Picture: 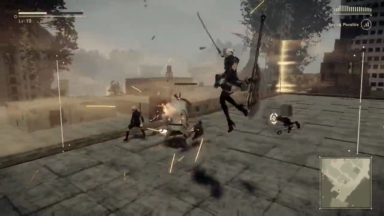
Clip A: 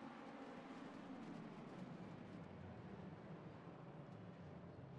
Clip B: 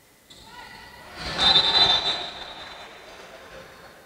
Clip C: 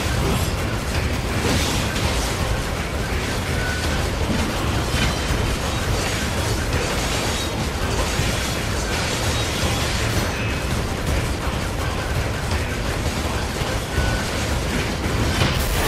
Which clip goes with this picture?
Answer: C